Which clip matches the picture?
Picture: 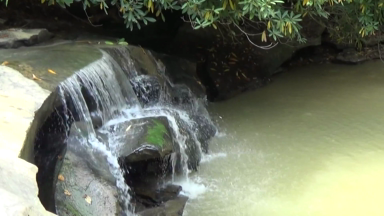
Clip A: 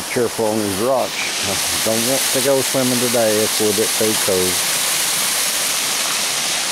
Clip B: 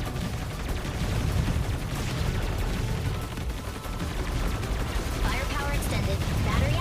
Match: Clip A